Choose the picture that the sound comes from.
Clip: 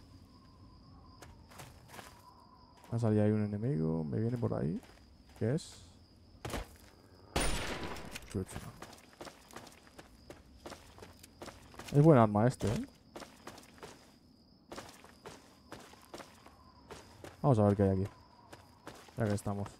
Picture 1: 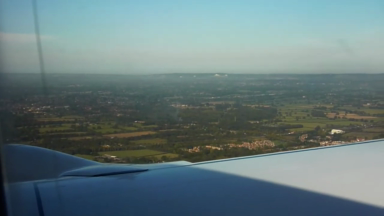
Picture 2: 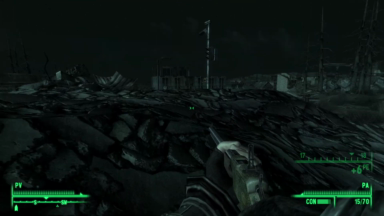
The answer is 2